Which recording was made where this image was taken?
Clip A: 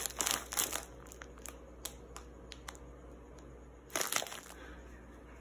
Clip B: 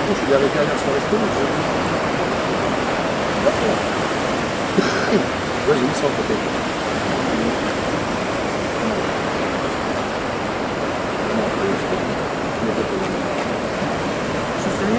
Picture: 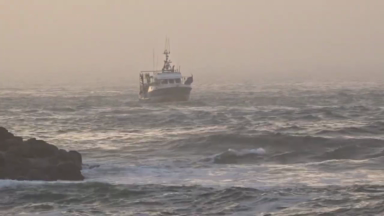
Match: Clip B